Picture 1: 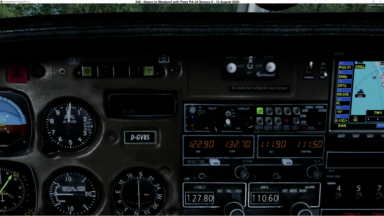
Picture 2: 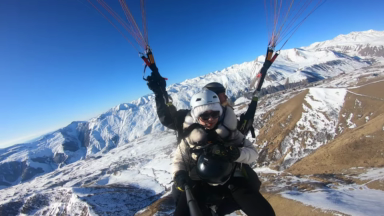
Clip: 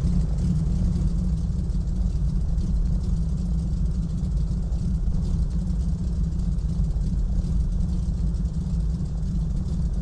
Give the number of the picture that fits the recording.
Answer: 1